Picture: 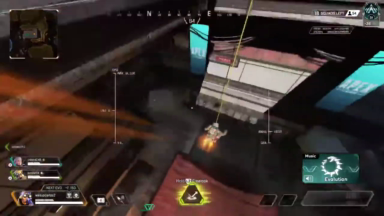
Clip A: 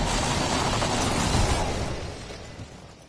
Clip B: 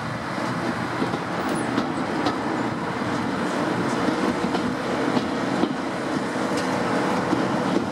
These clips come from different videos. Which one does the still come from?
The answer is A